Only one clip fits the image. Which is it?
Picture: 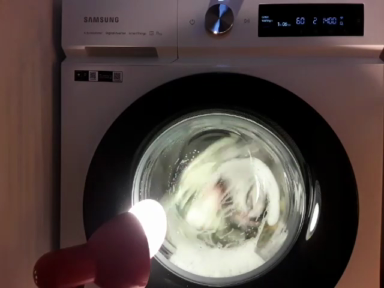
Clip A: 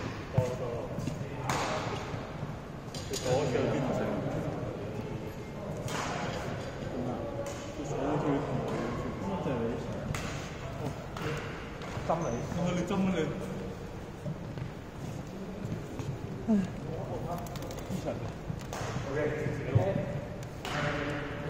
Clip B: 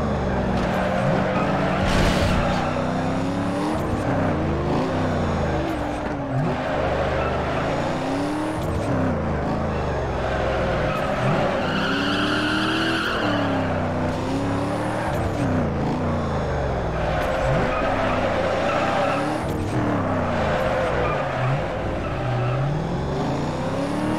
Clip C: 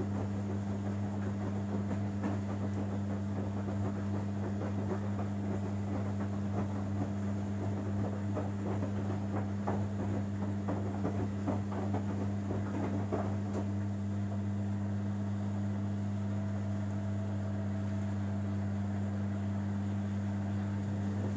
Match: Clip C